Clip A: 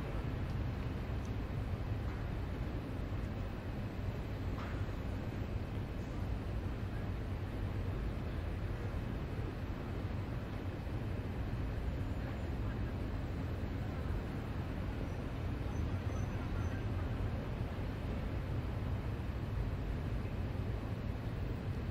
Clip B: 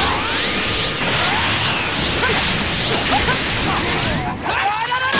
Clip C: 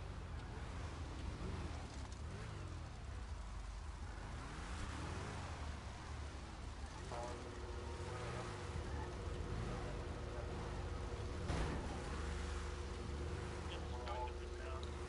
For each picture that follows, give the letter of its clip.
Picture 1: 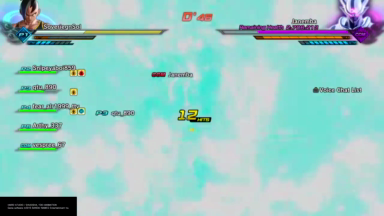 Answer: B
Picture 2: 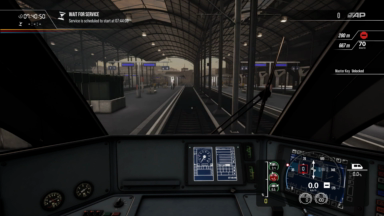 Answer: A